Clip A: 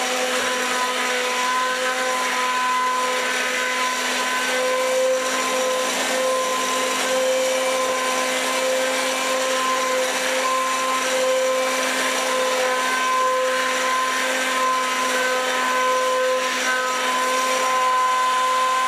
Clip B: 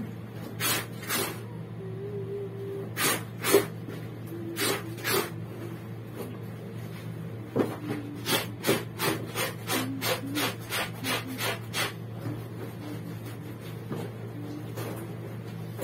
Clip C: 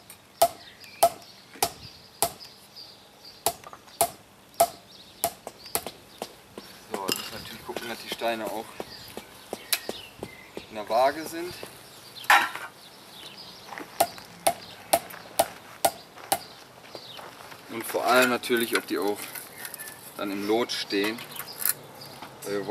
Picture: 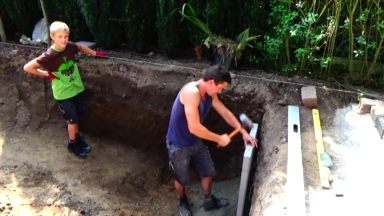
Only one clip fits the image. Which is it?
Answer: C